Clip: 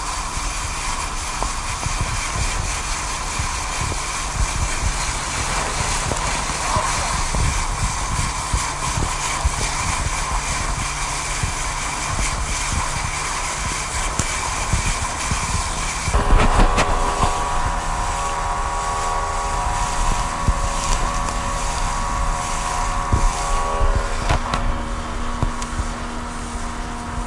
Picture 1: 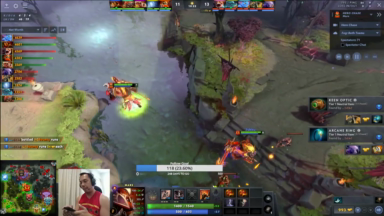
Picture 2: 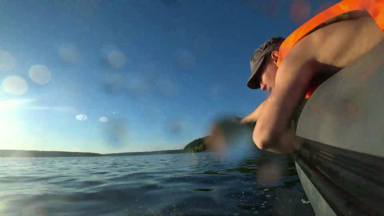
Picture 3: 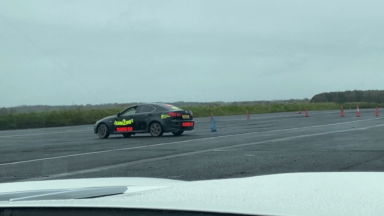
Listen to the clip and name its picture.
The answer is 2